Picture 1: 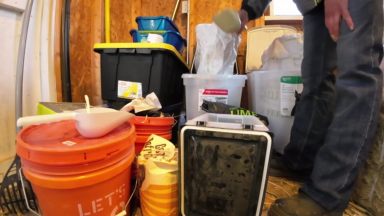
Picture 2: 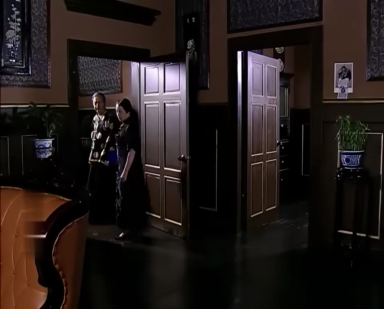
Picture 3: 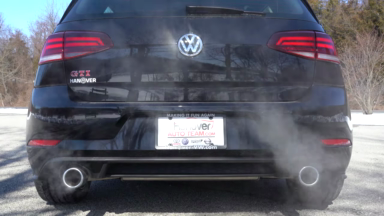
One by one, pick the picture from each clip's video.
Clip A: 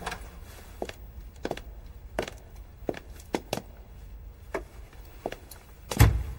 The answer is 2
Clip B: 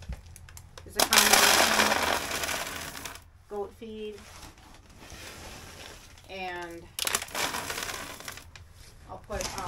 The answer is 1